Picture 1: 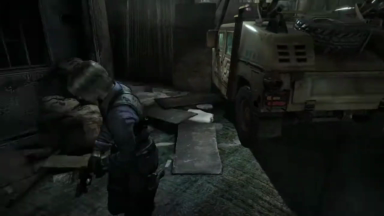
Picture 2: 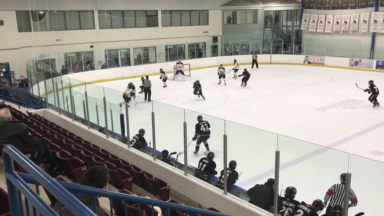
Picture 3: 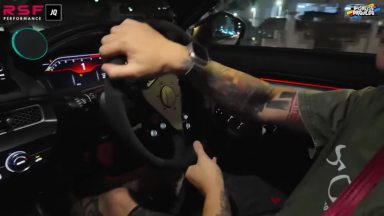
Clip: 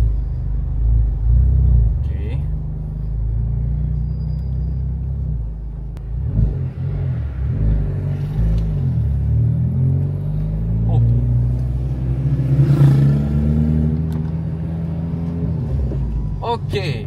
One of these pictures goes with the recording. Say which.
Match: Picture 3